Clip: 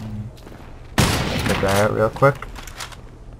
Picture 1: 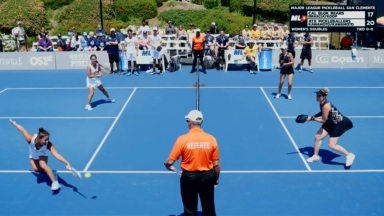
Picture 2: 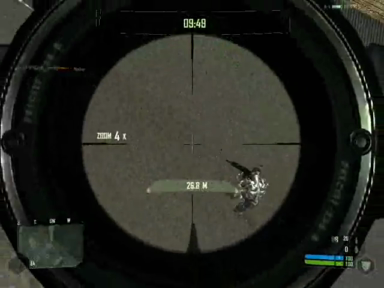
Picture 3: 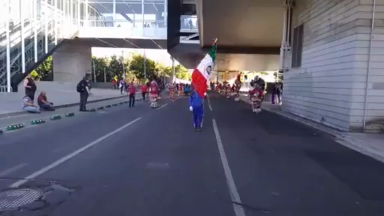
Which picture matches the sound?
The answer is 2